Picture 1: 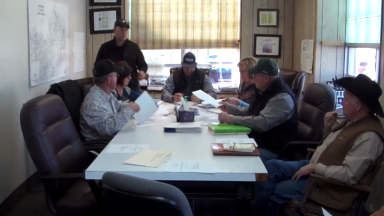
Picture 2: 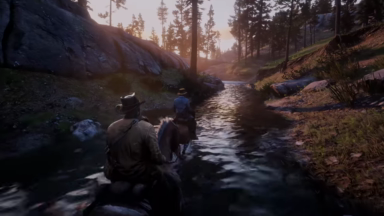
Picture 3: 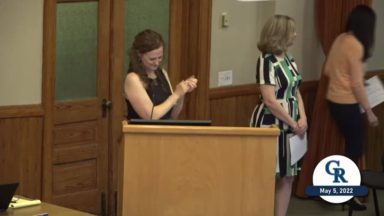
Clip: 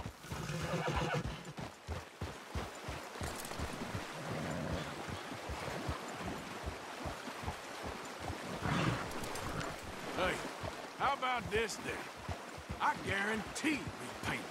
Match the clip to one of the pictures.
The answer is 2